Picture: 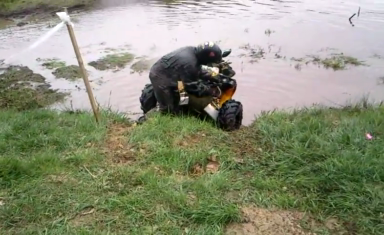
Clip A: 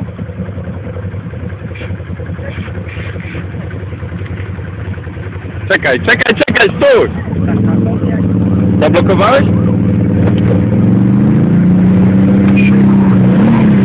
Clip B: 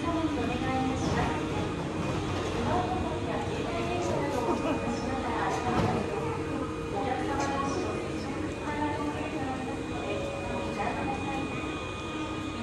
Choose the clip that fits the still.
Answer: A